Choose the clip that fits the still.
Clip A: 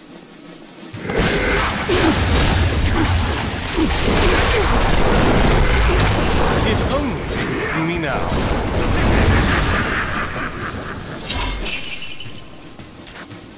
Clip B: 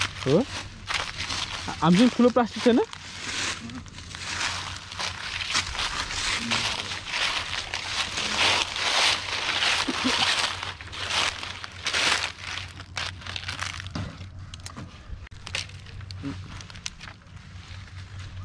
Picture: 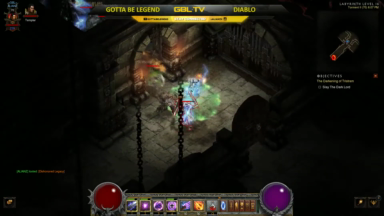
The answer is A